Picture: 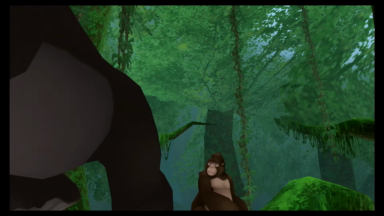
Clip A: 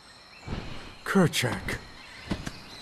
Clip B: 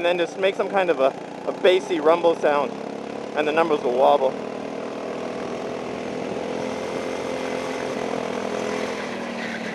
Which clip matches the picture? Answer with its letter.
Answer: A